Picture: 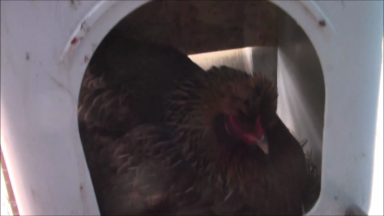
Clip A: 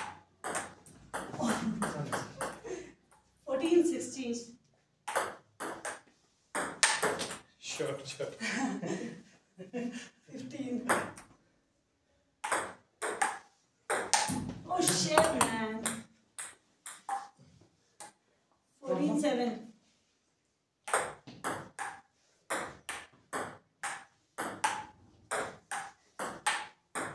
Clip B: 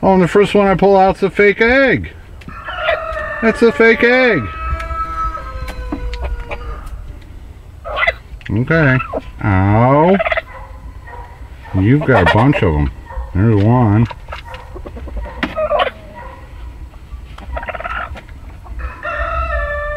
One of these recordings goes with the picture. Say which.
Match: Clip B